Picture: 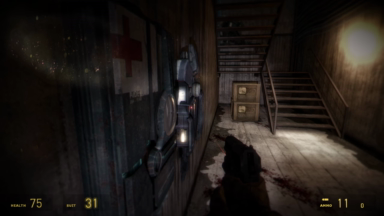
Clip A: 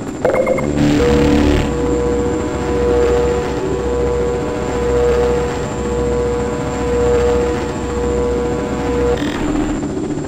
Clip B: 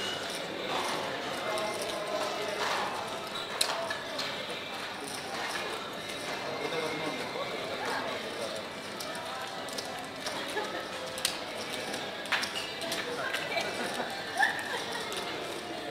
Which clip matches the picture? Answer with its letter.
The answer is A